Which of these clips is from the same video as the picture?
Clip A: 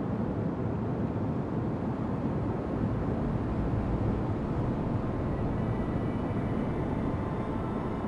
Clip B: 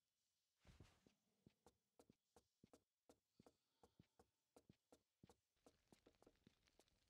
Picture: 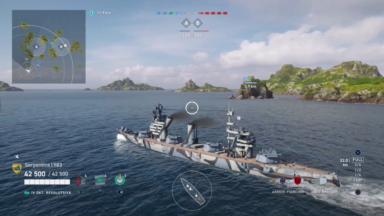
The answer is A